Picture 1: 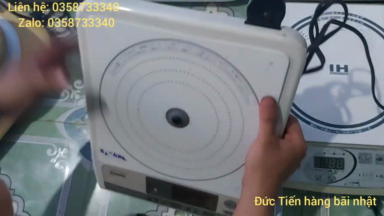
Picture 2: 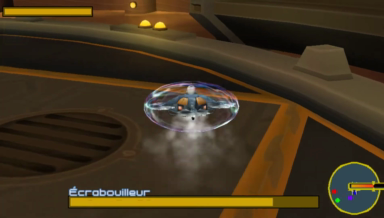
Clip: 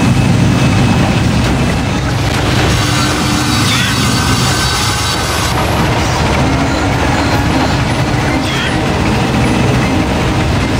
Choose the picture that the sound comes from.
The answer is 2